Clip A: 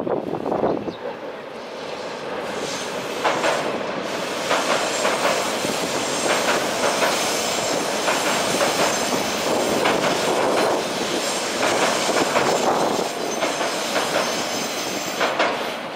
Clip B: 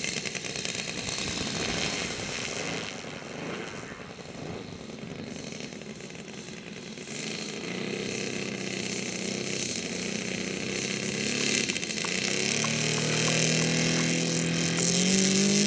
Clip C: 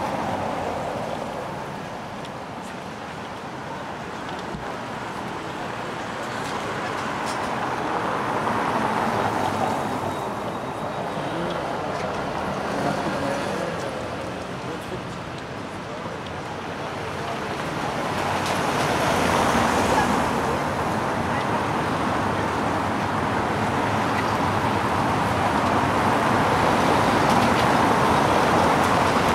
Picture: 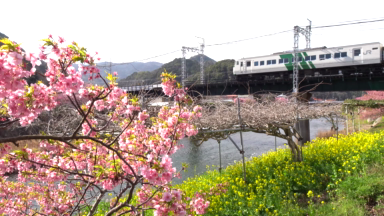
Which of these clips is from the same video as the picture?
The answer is A